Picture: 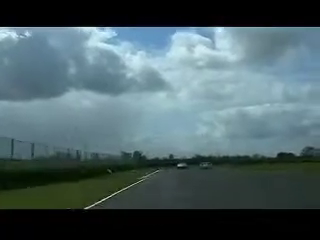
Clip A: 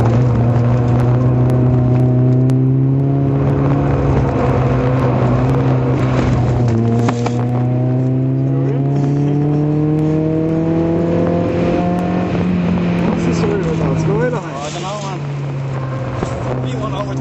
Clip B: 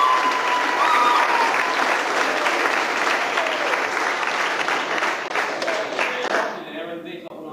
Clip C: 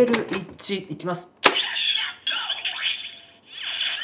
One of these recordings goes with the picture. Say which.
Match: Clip A